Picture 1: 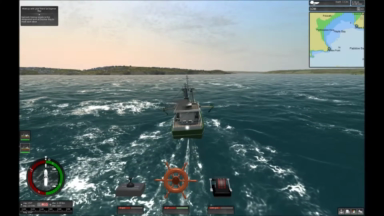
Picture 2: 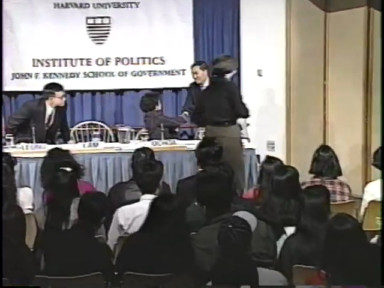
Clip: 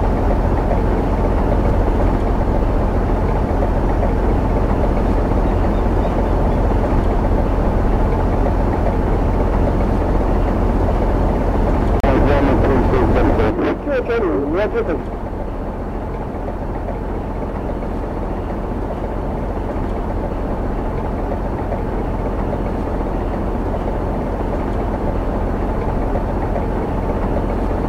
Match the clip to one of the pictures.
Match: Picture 1